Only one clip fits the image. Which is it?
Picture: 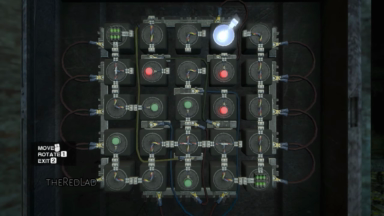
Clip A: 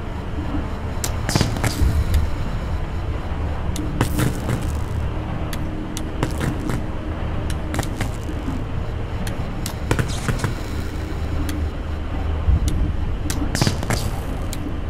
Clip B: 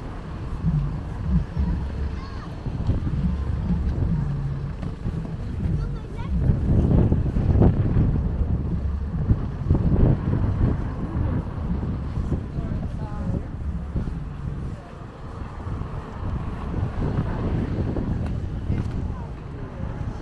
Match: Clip A